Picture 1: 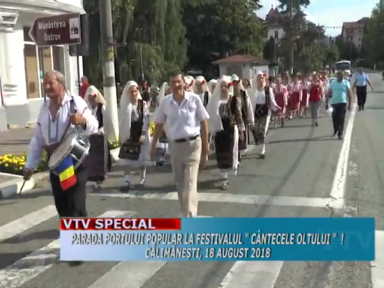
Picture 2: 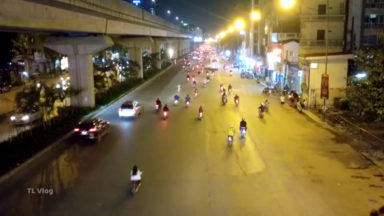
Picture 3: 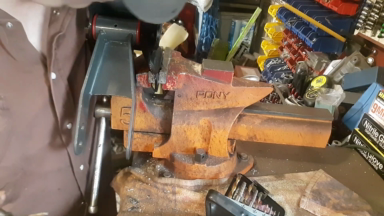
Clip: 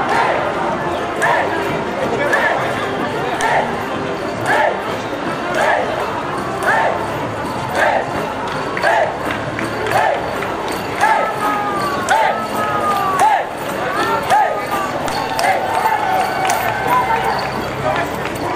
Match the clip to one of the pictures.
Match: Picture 1